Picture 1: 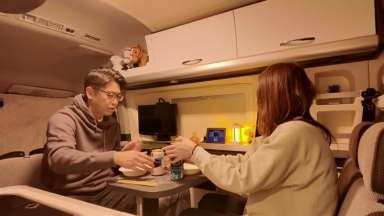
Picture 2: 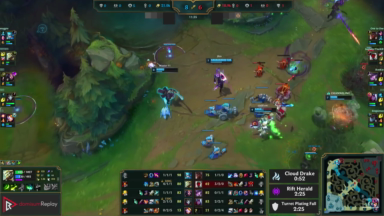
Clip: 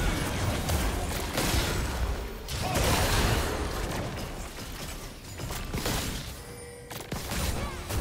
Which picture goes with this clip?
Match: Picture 2